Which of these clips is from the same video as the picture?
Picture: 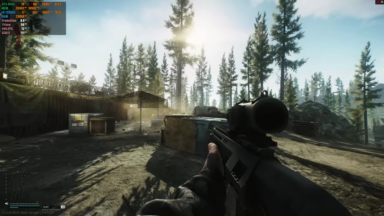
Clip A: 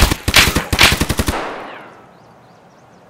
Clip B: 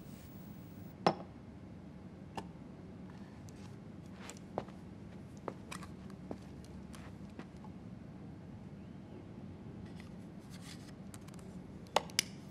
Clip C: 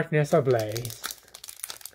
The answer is A